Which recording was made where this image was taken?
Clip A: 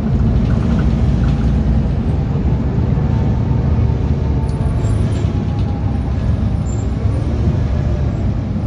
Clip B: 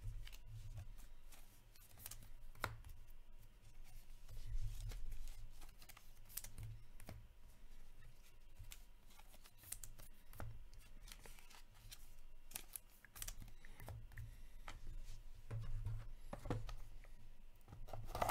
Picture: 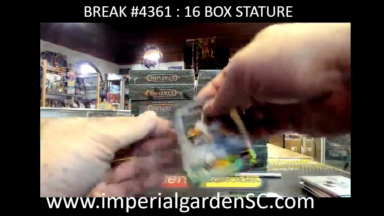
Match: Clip B